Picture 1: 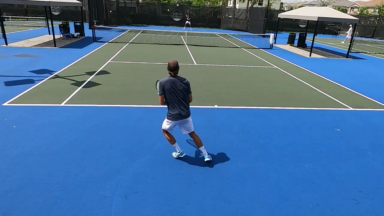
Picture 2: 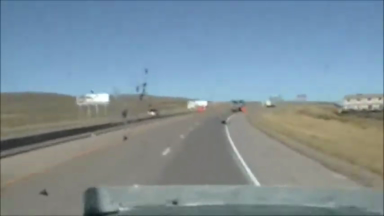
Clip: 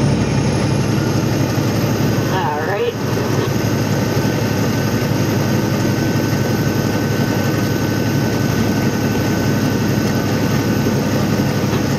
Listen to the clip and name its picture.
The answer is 2